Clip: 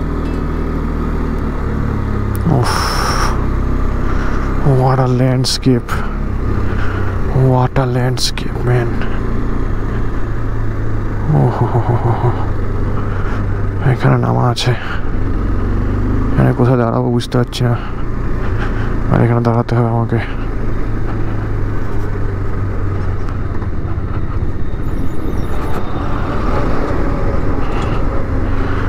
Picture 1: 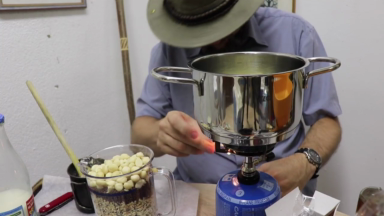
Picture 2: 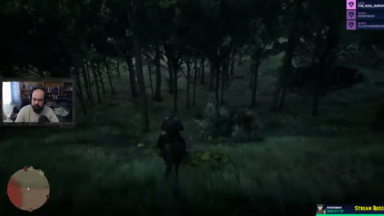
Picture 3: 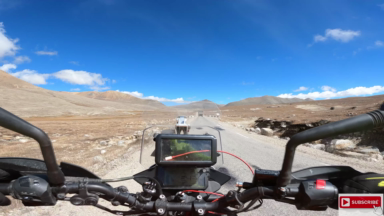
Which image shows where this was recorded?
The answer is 3